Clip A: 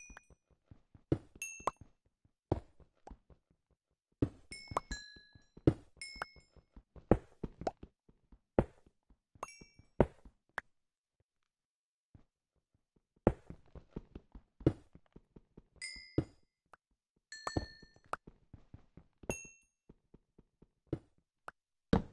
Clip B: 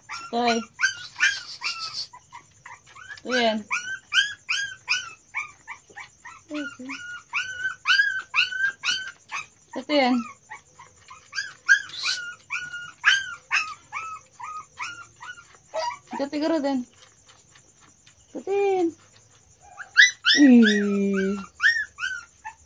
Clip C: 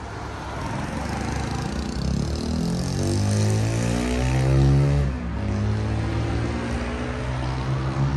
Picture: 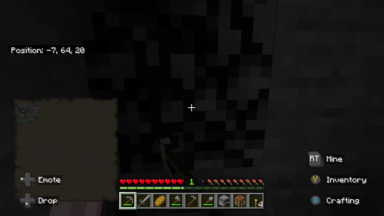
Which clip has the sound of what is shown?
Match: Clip A